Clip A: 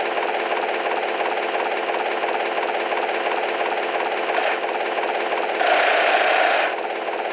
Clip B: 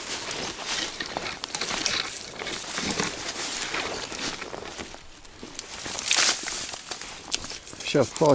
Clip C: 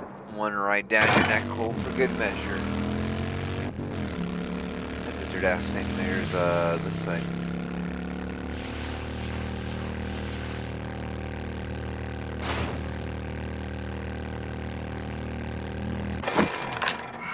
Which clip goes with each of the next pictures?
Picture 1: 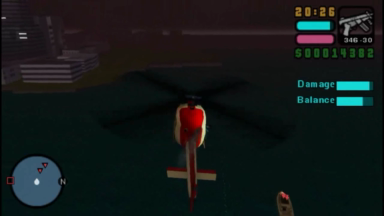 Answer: A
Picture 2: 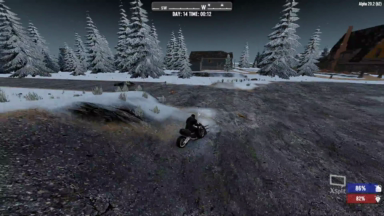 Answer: C